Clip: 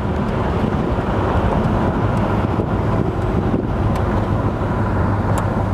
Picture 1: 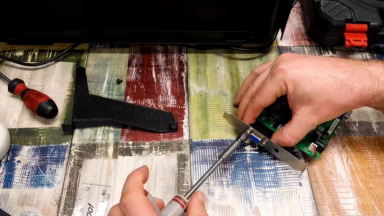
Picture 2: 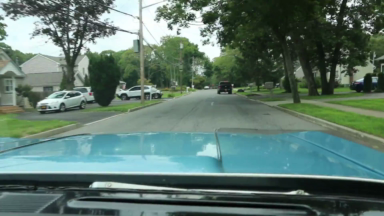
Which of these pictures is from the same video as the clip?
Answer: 2